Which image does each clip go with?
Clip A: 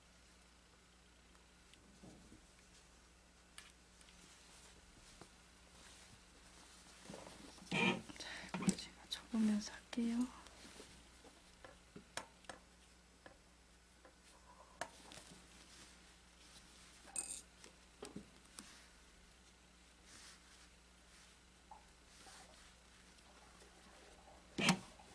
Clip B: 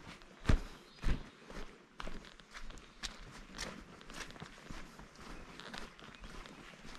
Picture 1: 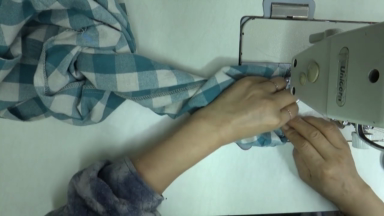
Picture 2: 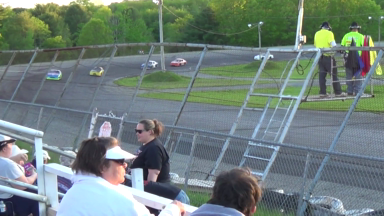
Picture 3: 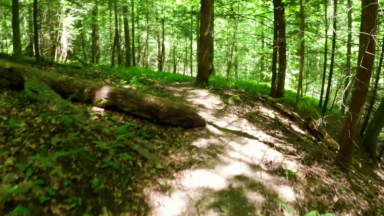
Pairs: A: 1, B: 3